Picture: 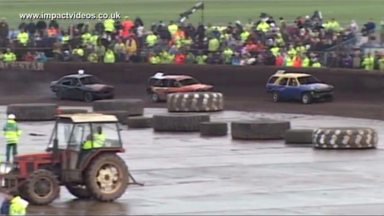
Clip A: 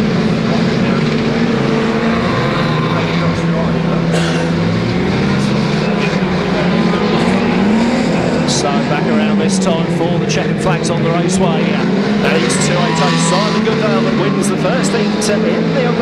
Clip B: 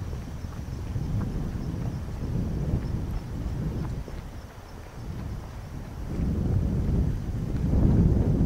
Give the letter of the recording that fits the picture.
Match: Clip A